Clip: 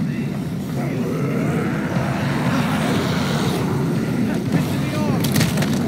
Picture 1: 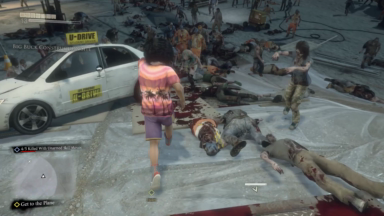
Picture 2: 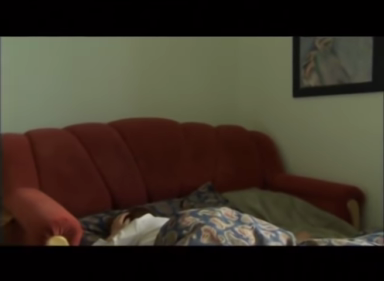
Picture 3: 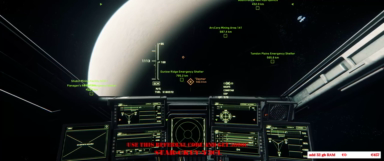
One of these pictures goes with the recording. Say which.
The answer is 1